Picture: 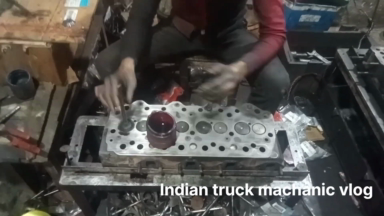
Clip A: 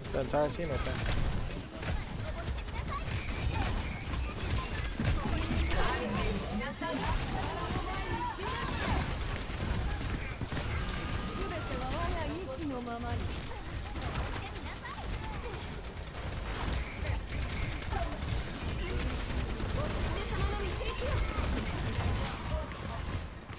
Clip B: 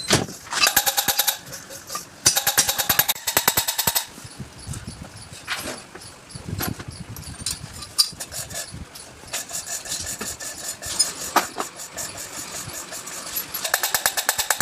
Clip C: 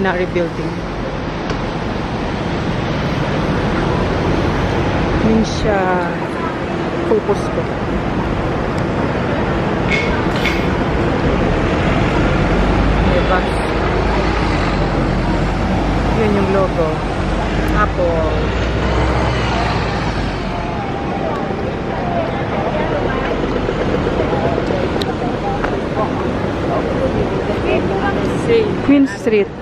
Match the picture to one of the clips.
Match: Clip B